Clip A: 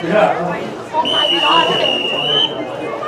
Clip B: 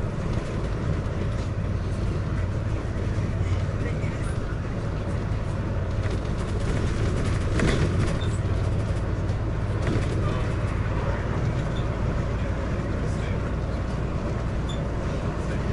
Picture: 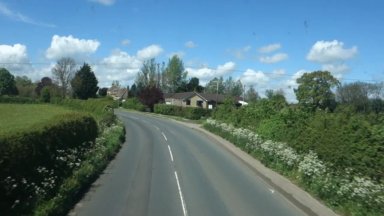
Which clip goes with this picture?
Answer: B